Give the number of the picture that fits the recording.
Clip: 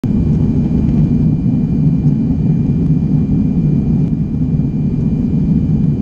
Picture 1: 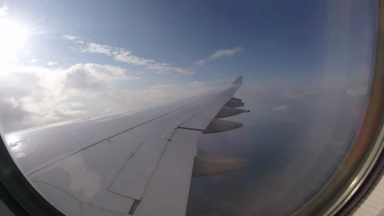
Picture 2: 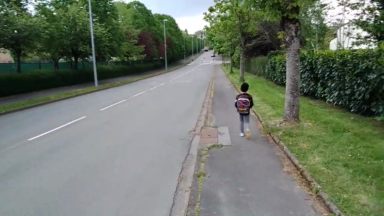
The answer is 1